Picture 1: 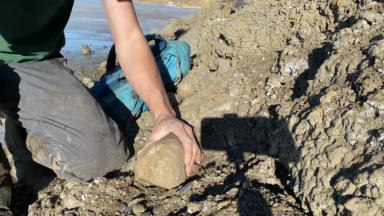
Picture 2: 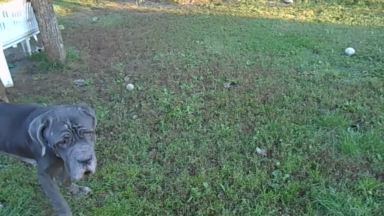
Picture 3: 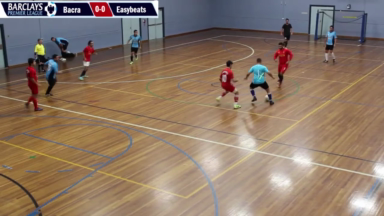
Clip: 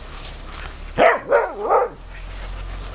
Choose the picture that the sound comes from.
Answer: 2